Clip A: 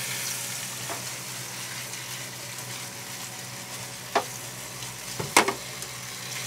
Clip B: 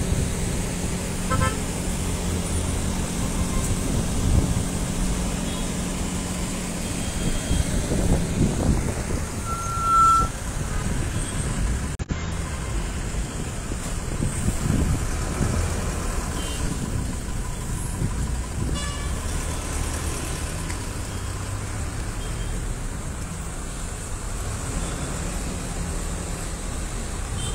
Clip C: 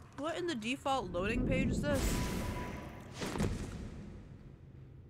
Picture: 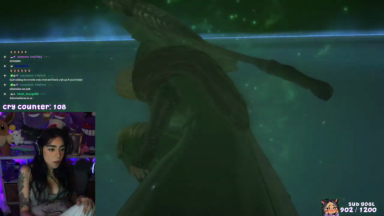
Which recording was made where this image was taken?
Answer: C